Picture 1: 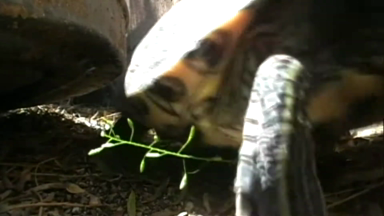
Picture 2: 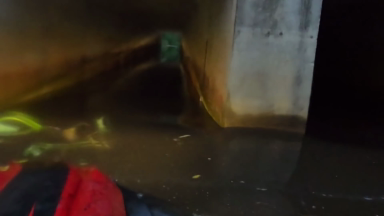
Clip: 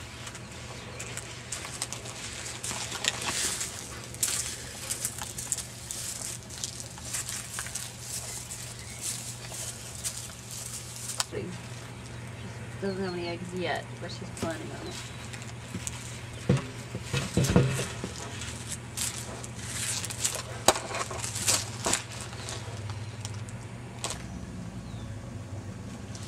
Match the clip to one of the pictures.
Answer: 1